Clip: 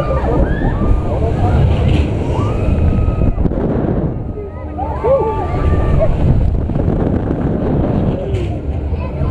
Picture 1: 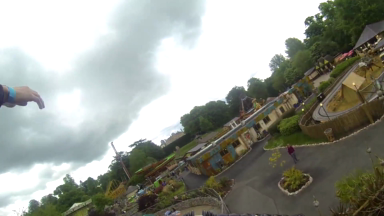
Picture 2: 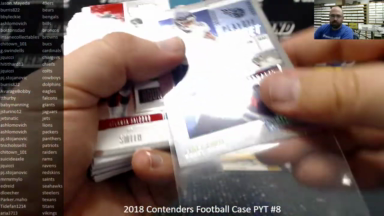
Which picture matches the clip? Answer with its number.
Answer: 1